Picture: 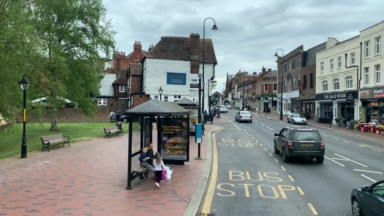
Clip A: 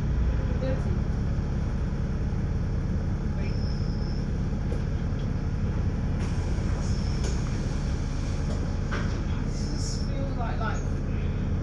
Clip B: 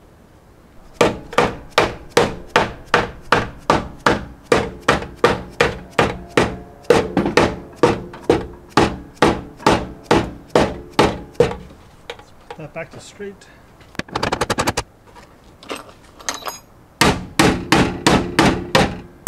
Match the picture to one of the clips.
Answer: A